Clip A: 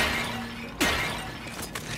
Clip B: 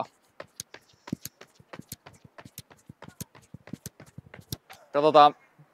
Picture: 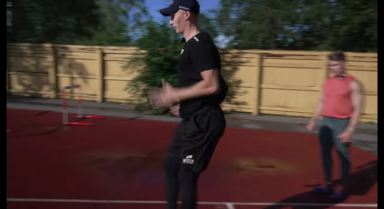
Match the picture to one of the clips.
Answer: B